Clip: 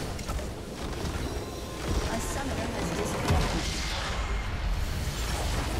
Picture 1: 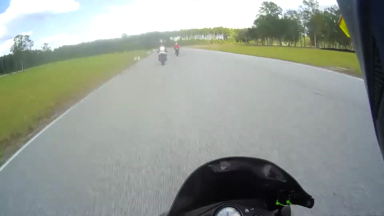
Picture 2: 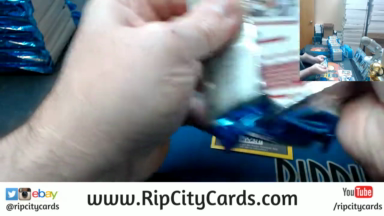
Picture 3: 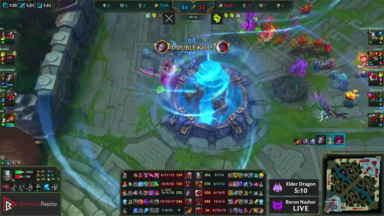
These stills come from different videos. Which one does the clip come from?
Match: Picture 3